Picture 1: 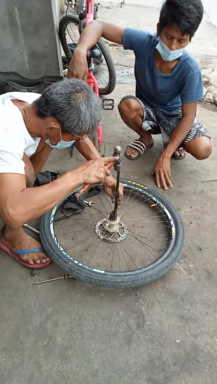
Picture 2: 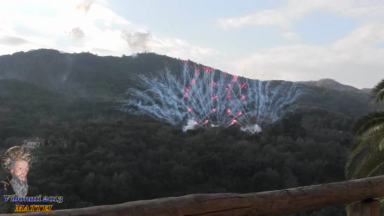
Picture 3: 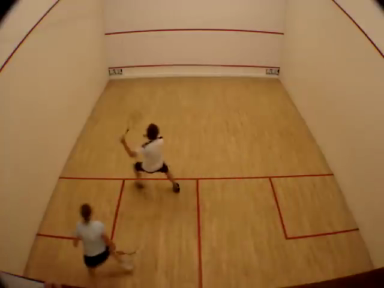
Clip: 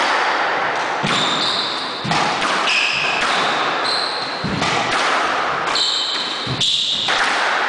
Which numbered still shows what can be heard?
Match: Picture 3